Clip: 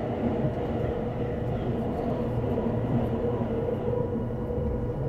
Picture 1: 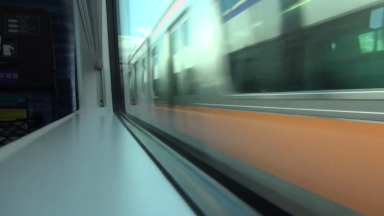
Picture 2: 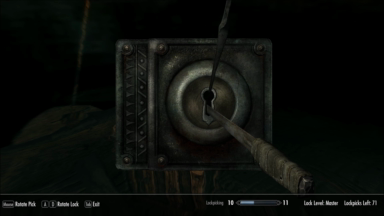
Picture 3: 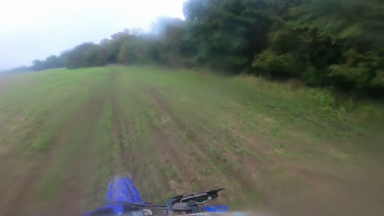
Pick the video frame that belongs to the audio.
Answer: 1